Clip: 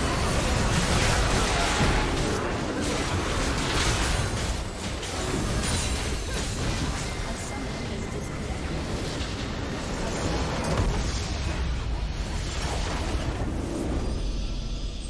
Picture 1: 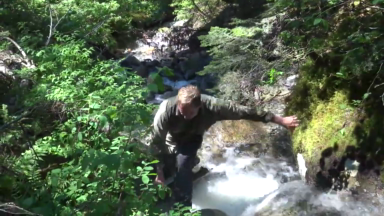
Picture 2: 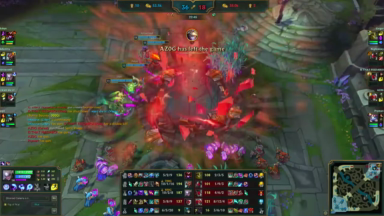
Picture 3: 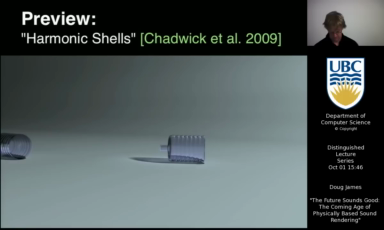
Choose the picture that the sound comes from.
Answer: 2